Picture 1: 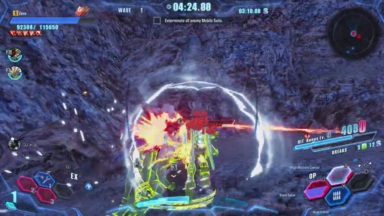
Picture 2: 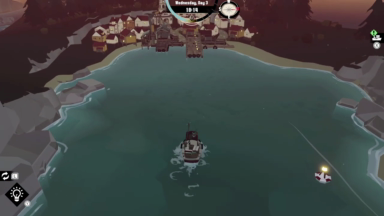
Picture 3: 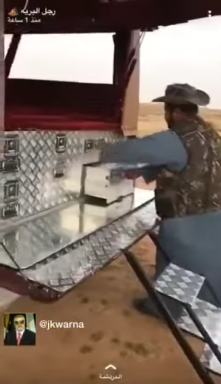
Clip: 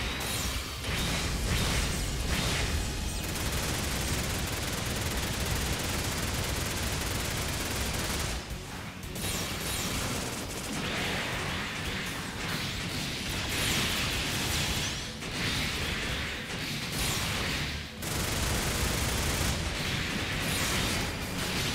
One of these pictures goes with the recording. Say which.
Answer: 1